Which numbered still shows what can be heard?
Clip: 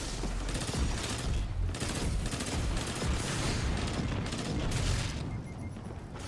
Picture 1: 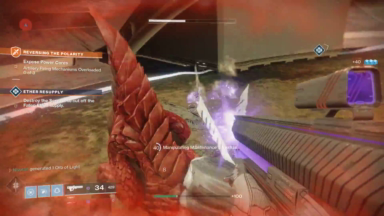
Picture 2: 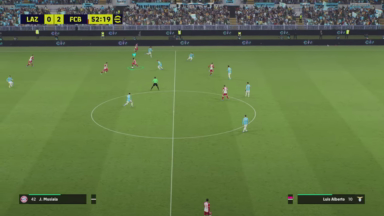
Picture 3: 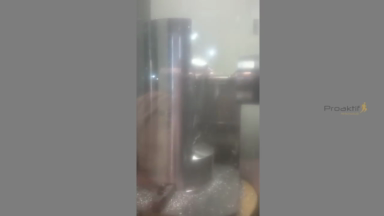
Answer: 1